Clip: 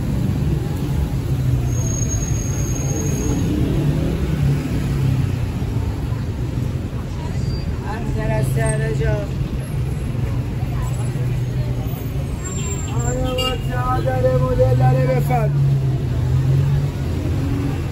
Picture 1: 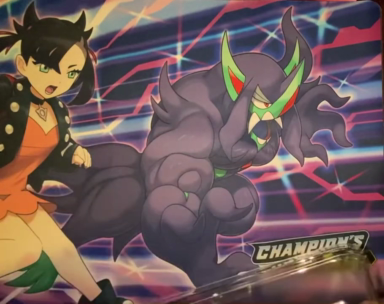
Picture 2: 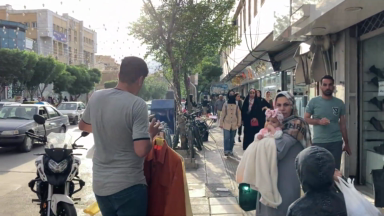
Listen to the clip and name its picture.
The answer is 2